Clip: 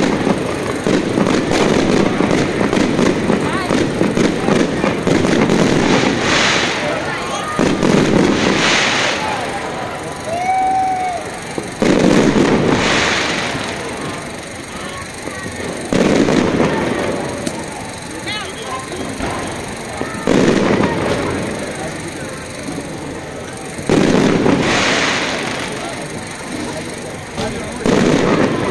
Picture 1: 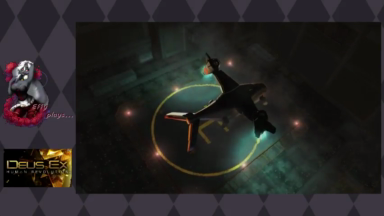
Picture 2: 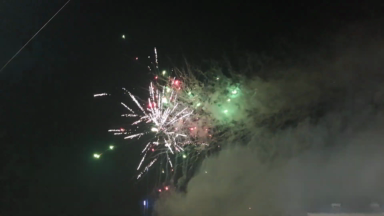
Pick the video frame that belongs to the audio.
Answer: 2